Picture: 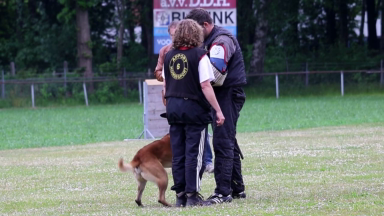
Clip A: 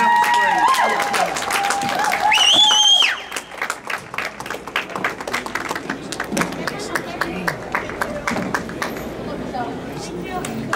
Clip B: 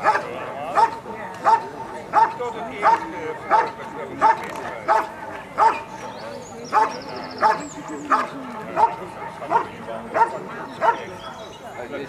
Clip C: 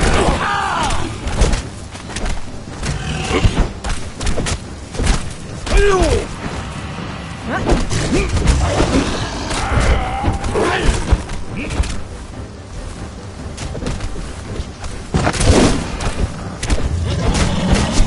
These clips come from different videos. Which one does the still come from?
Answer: B